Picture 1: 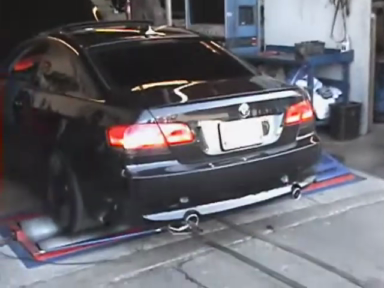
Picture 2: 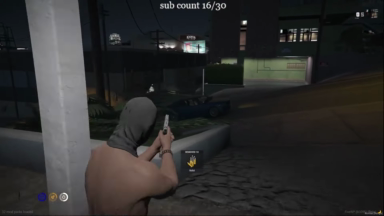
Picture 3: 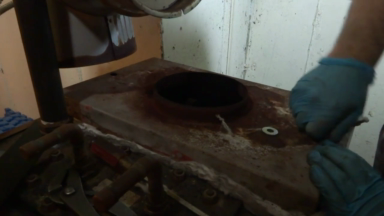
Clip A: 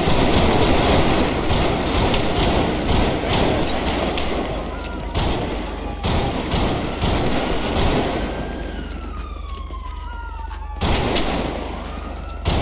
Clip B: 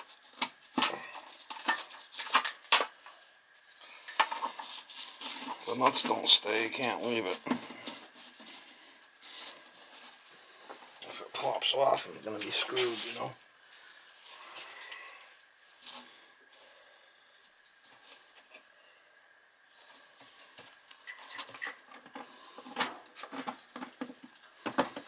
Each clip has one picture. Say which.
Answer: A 2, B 3